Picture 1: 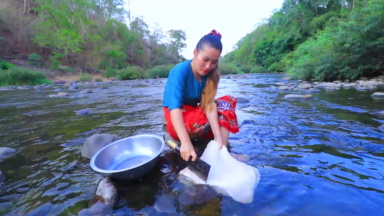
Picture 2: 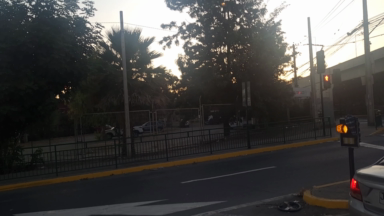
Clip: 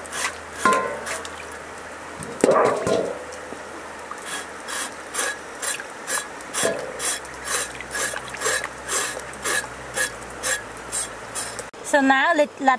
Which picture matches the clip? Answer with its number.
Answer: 1